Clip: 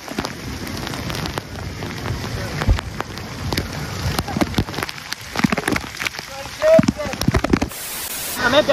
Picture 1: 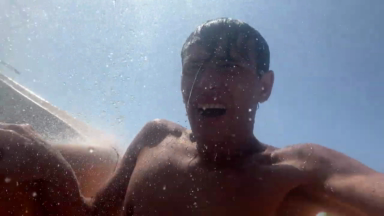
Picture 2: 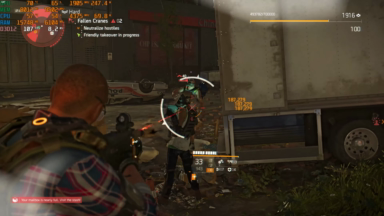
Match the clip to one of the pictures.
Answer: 1